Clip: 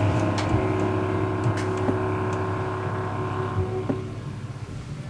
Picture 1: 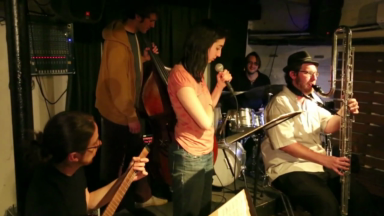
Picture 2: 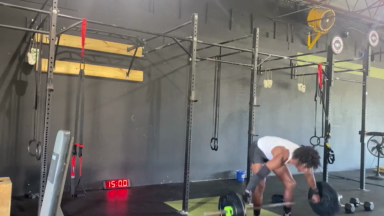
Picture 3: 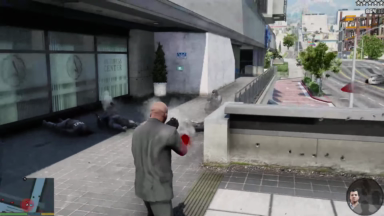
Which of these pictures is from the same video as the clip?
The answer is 1